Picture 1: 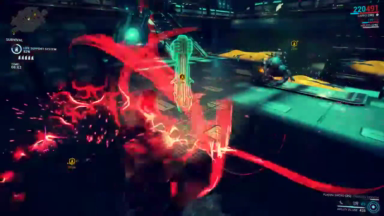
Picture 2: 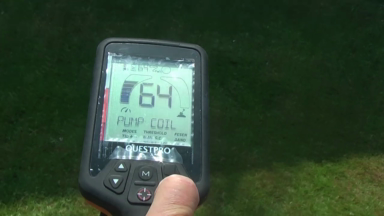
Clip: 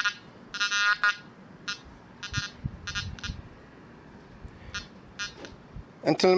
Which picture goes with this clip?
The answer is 2